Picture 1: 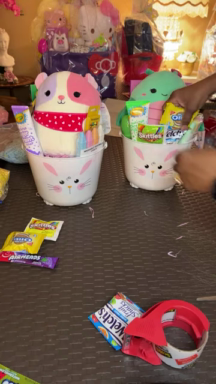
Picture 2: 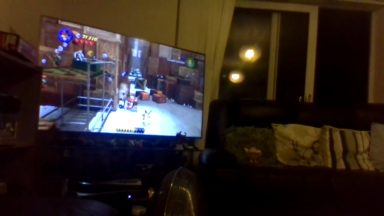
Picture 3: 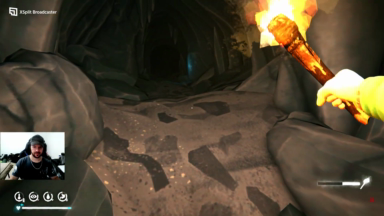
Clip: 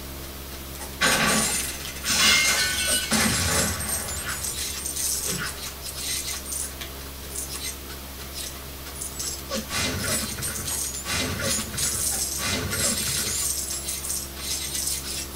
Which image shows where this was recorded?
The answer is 2